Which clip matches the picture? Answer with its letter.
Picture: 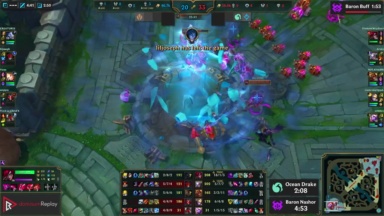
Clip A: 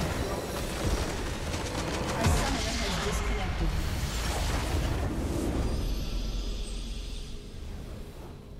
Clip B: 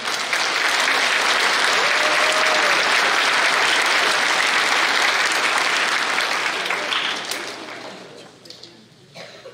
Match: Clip A